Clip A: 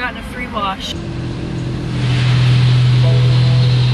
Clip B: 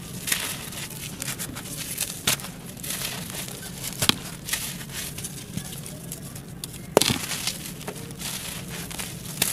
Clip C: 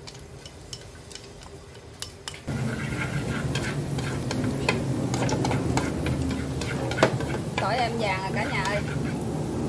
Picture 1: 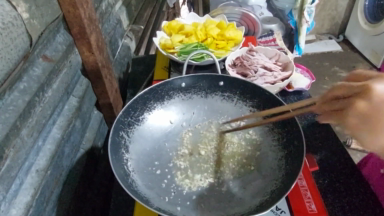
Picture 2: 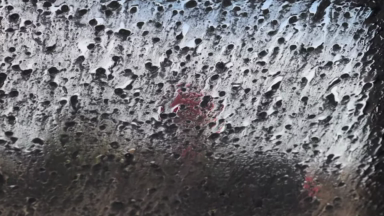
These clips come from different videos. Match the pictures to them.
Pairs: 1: C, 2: A